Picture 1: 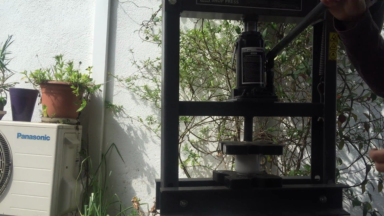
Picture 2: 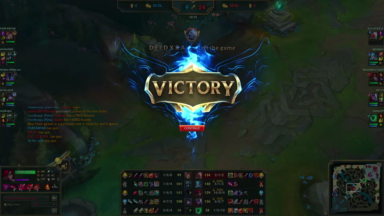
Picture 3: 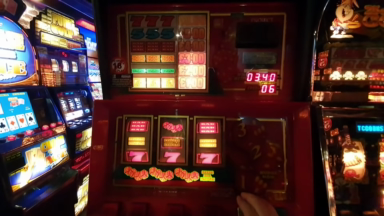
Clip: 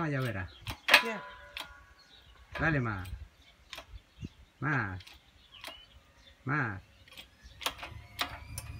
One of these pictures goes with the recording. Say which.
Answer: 1